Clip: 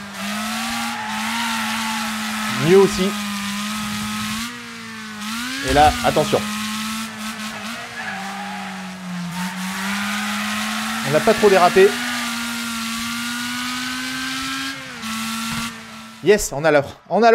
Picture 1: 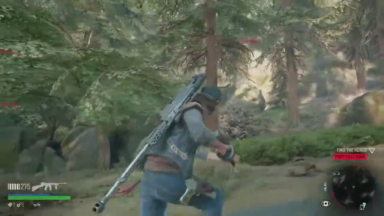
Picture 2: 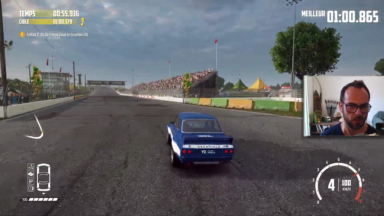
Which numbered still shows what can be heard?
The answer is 2